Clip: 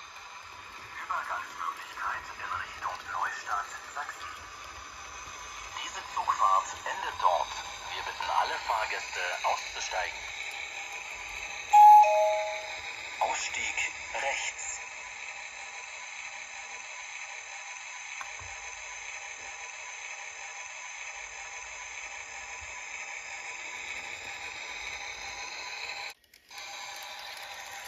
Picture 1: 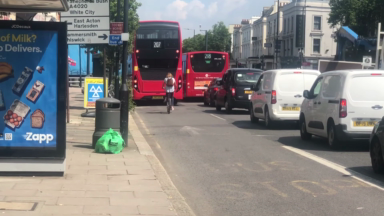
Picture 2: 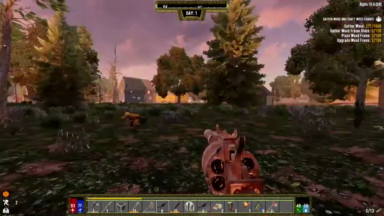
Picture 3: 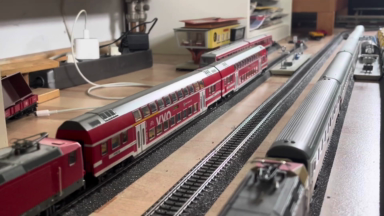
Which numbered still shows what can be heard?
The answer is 3